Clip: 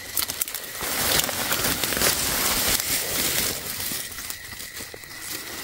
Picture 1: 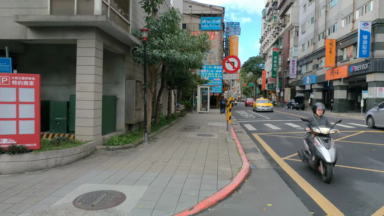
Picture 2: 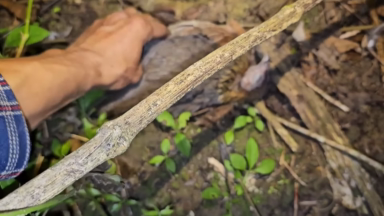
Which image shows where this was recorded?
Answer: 2